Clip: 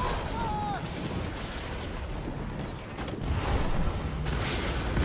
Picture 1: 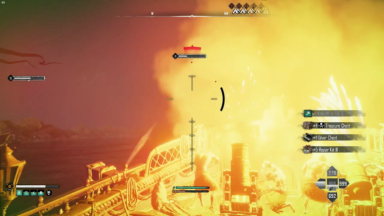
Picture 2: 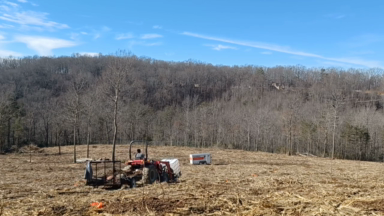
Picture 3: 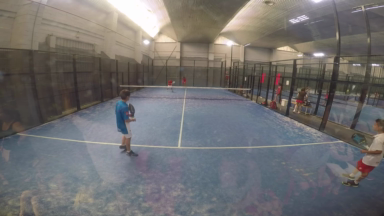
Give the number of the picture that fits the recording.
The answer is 1